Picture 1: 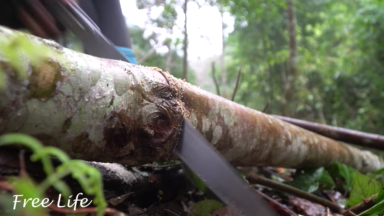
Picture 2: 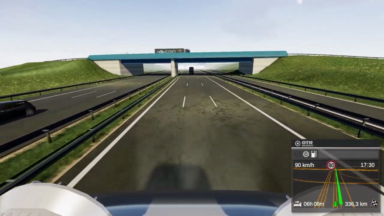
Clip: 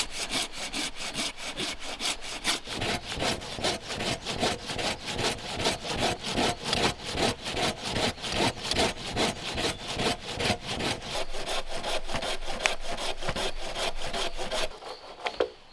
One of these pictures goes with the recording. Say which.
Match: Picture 1